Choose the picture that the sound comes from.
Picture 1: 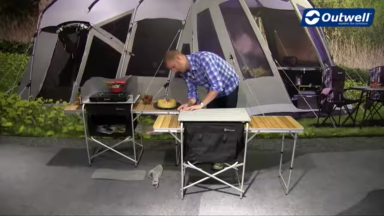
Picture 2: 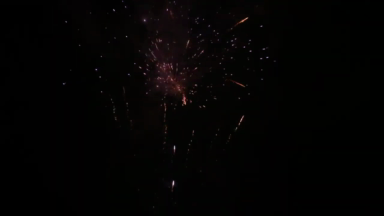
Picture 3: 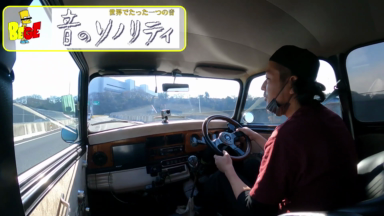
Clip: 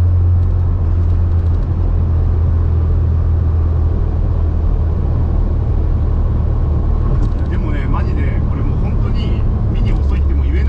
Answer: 3